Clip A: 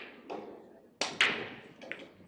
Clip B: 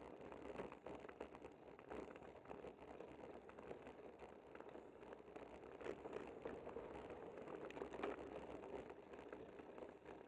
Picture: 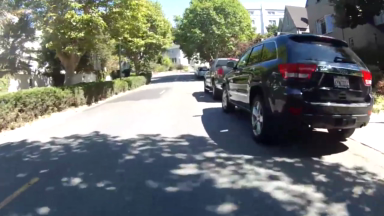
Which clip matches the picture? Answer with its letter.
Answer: B